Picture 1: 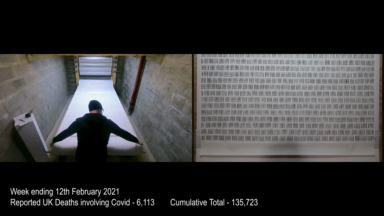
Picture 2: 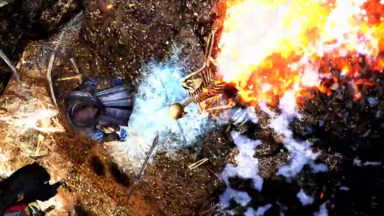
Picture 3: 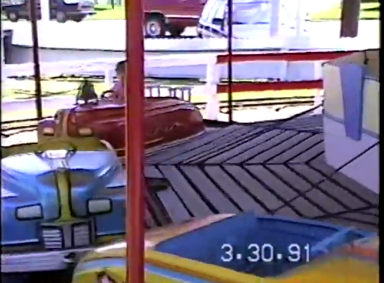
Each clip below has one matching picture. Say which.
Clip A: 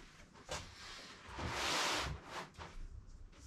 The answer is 1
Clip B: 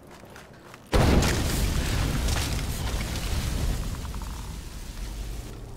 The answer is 2